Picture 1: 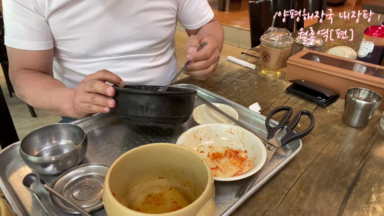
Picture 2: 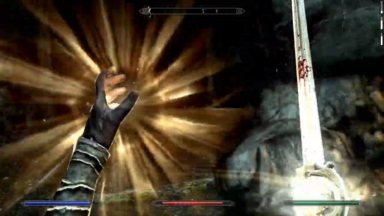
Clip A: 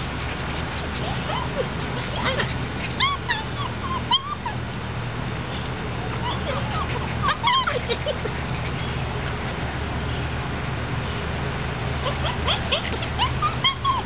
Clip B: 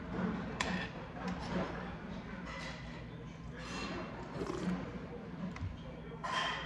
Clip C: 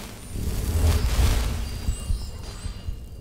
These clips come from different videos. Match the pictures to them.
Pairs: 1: B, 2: C